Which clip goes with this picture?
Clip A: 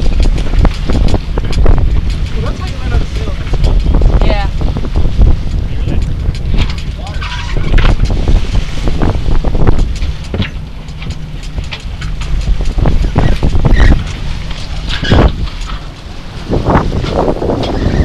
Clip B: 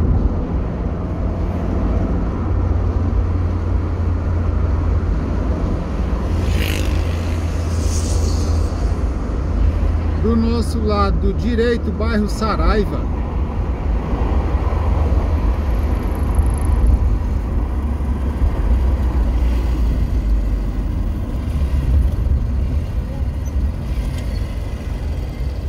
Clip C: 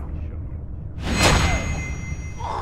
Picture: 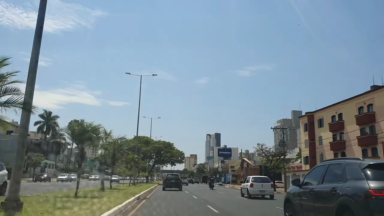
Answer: B